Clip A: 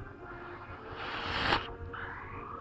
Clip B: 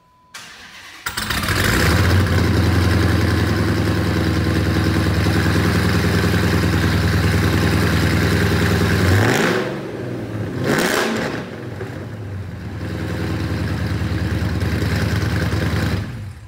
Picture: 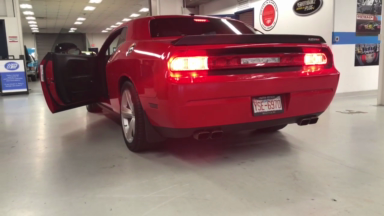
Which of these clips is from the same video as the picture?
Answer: B